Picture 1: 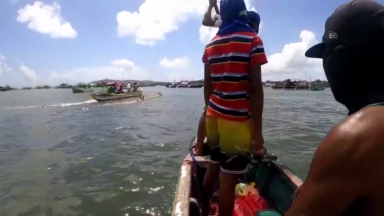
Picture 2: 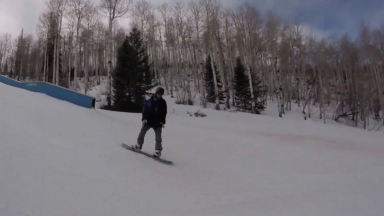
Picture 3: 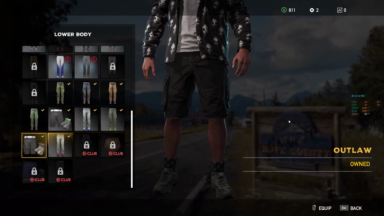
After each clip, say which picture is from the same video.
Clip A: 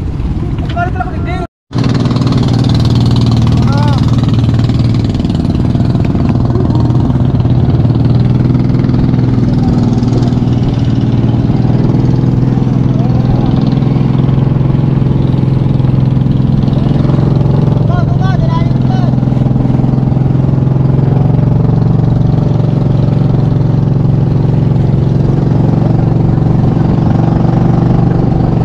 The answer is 1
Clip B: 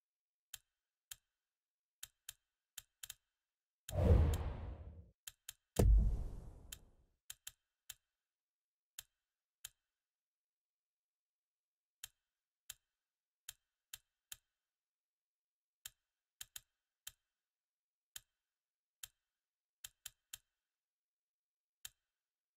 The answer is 3